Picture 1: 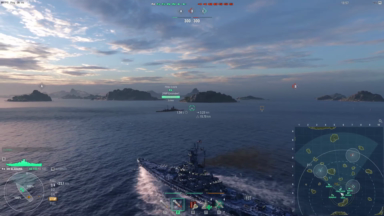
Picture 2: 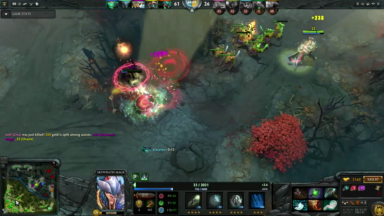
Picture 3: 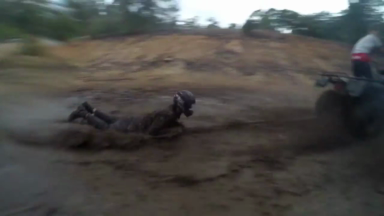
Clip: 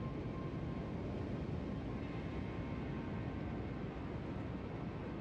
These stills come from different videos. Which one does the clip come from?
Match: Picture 1